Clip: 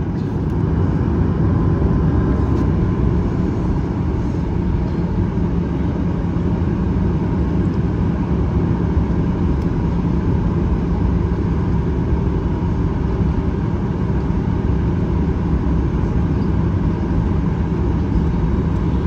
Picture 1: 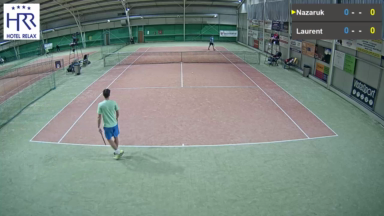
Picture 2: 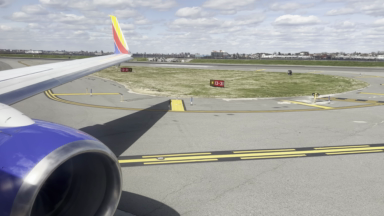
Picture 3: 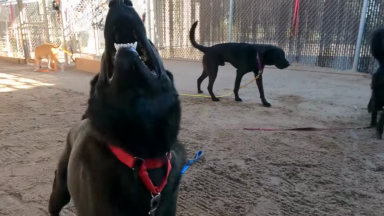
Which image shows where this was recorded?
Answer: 2